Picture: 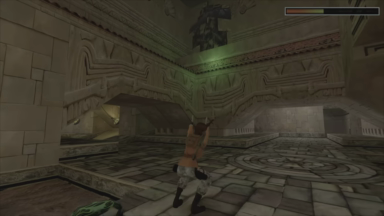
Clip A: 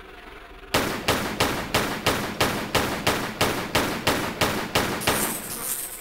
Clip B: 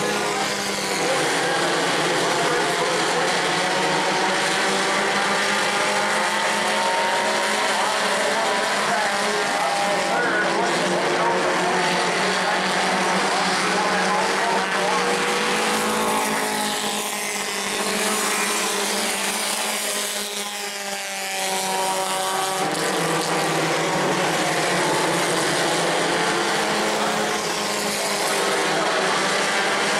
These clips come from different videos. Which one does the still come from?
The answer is A